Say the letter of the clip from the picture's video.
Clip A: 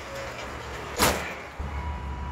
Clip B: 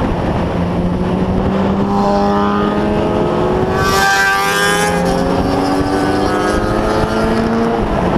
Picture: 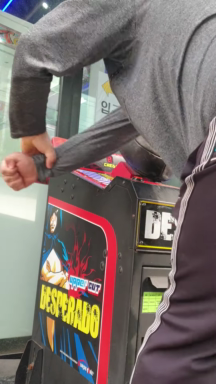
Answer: A